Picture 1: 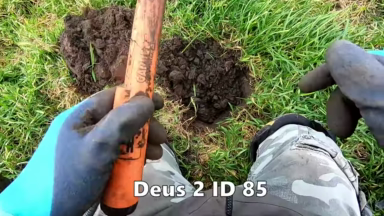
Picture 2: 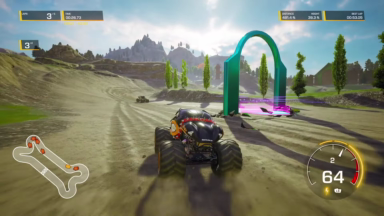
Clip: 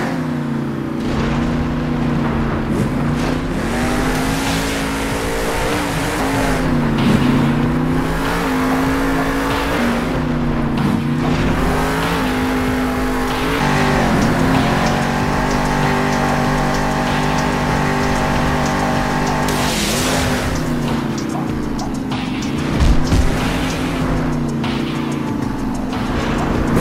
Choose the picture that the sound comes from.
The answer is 2